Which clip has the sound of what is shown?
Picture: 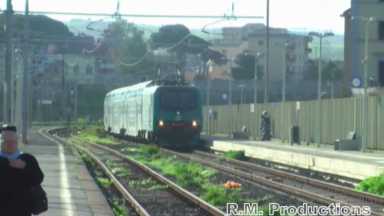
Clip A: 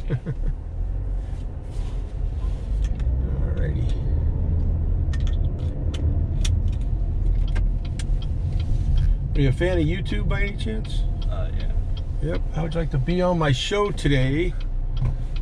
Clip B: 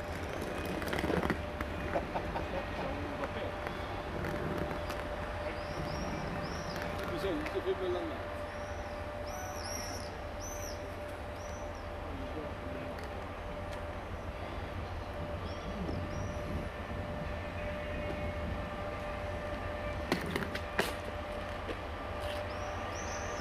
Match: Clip B